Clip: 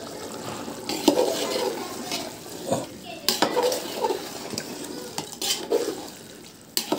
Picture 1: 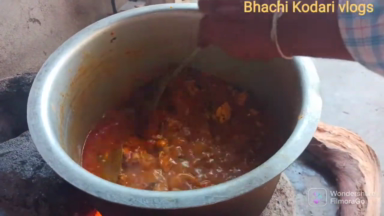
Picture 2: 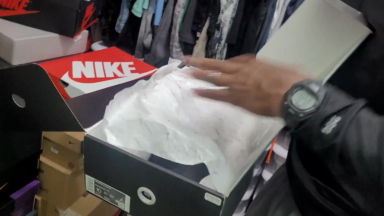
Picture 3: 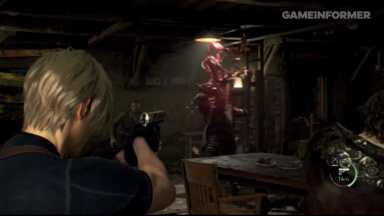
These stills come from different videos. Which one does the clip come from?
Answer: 1